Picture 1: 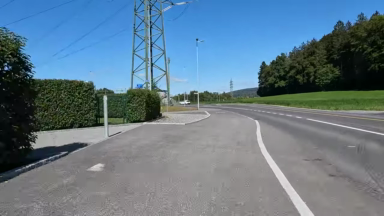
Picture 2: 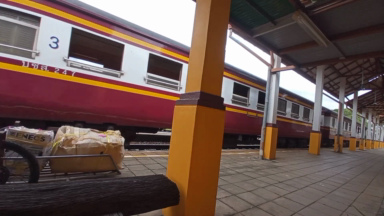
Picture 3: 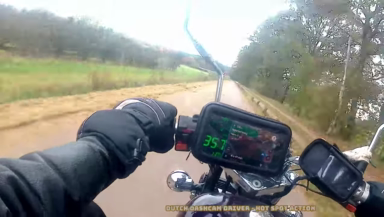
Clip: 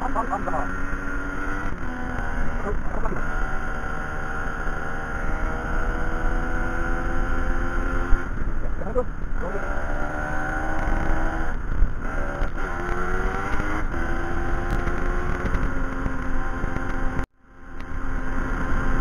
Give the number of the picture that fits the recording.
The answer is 3